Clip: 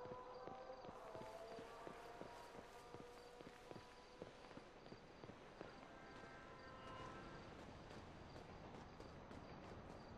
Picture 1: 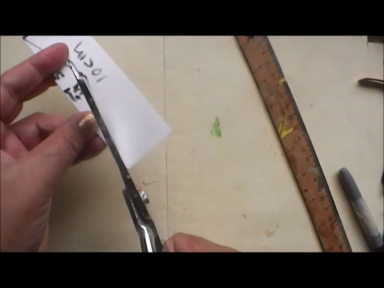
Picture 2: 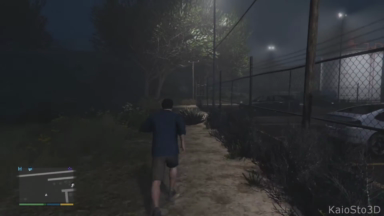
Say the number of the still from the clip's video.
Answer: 2